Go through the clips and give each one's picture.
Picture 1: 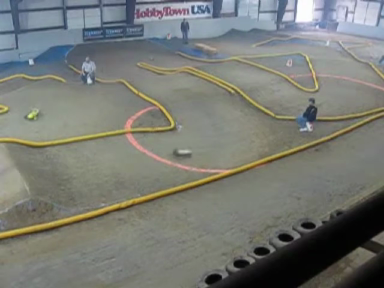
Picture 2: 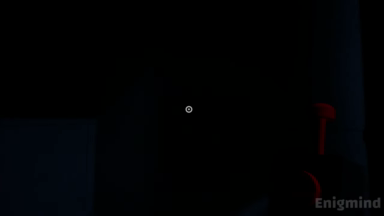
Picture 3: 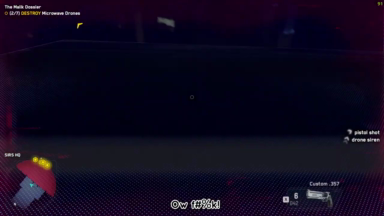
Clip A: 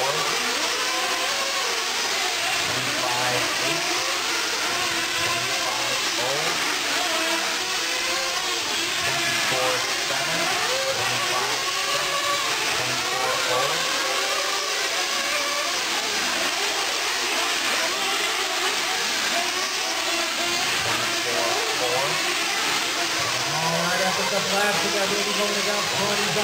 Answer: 1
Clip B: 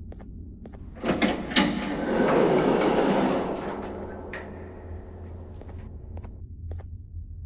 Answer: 2